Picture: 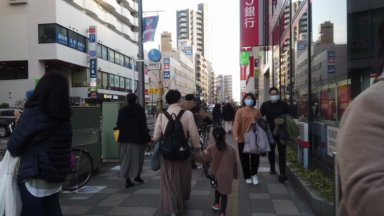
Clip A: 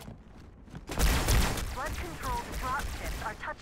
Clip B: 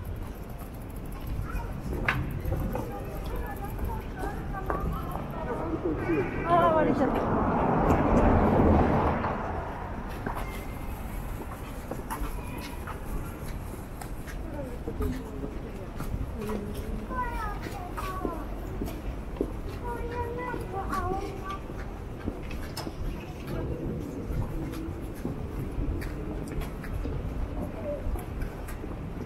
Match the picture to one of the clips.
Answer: B